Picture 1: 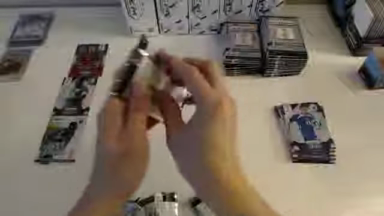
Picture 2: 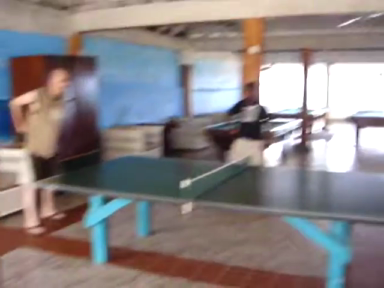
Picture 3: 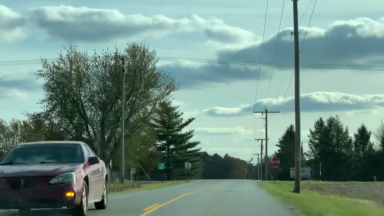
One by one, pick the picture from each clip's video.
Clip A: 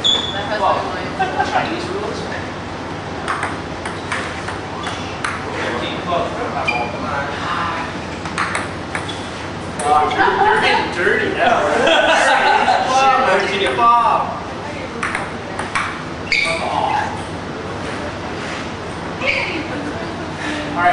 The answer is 2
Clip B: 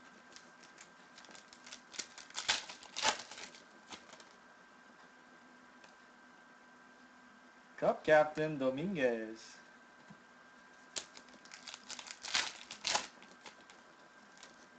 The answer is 1